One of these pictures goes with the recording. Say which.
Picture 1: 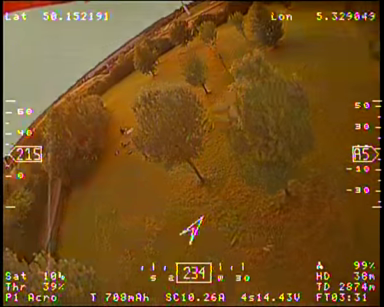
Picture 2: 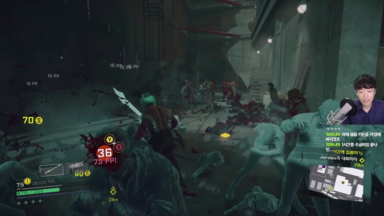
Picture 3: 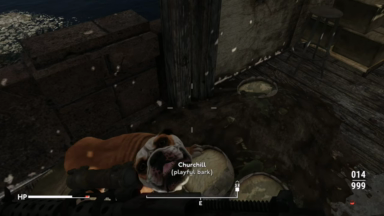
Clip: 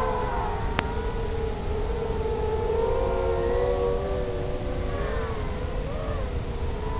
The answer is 1